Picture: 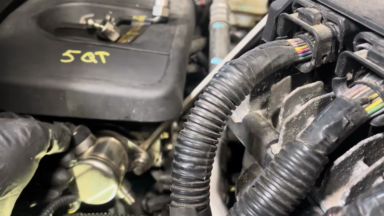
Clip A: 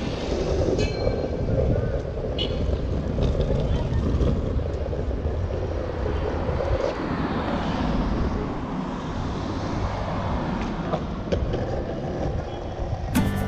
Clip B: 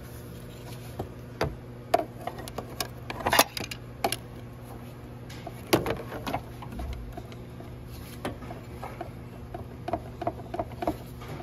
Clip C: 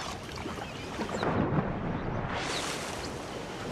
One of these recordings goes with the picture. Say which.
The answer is B